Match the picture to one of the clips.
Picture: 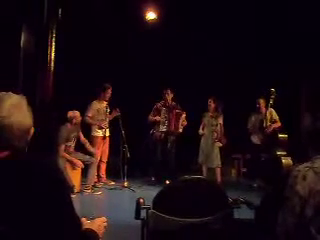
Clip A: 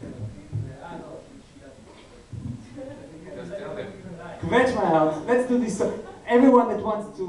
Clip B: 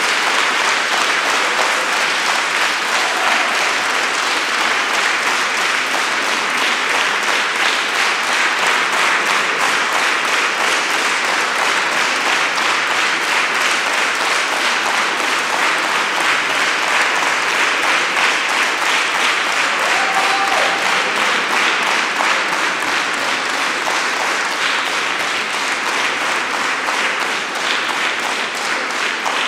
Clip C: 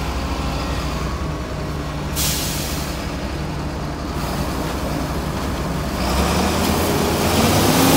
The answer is A